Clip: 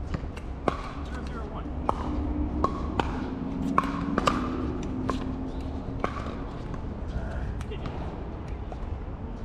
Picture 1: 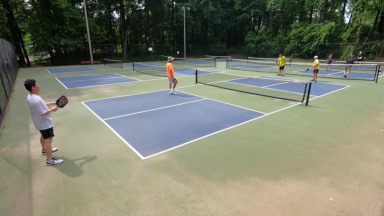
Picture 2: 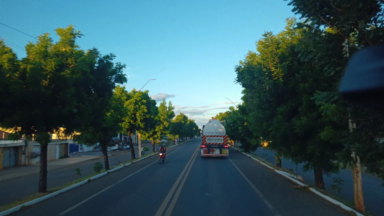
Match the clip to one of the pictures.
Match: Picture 1